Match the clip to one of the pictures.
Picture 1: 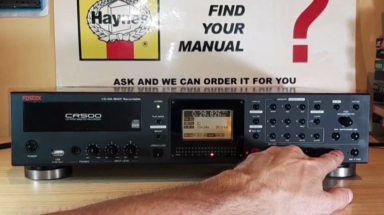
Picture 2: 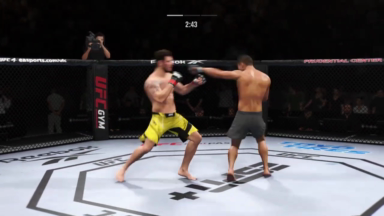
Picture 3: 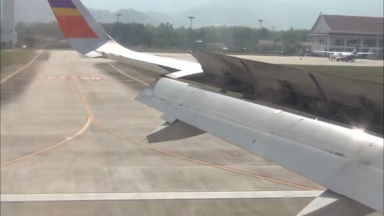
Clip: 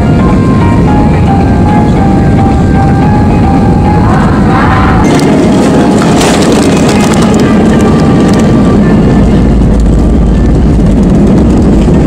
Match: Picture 3